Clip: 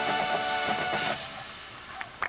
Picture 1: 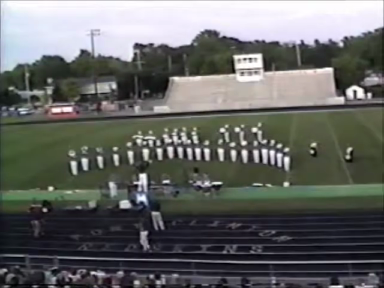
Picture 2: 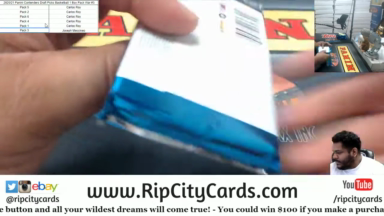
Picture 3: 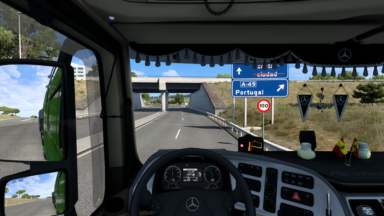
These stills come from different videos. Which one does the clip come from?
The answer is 1